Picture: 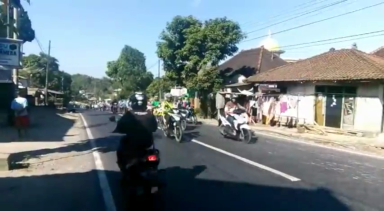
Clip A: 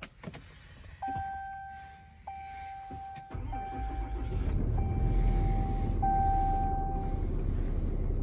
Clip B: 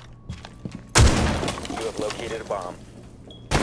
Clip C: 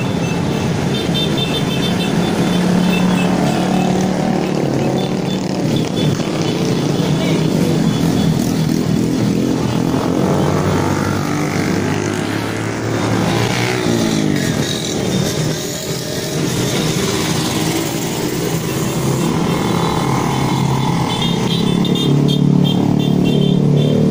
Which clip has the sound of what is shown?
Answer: C